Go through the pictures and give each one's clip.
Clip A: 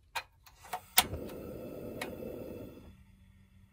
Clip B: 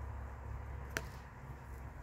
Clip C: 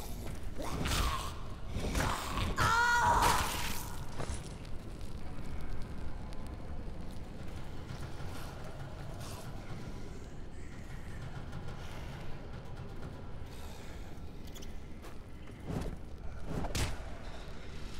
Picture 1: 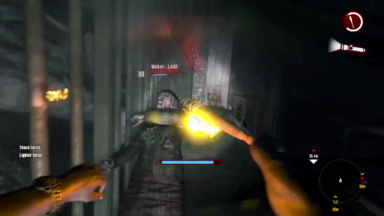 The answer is C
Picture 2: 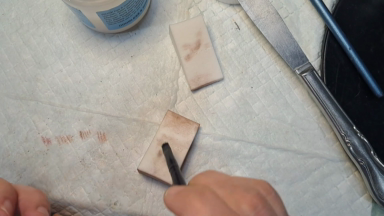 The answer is B